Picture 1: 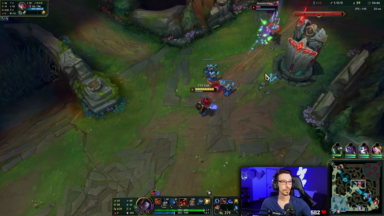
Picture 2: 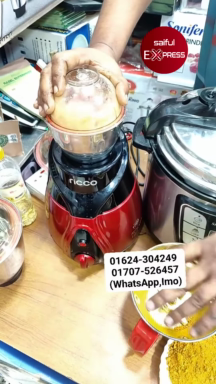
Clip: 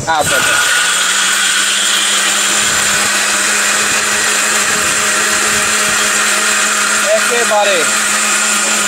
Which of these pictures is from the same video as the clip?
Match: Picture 2